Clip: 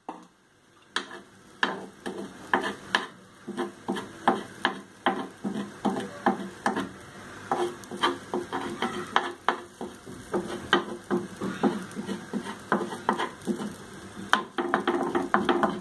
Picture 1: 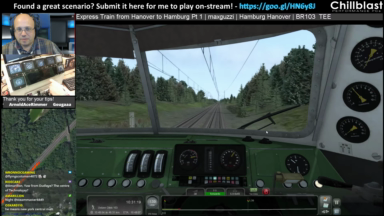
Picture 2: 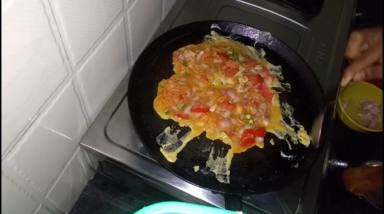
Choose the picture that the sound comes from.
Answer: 2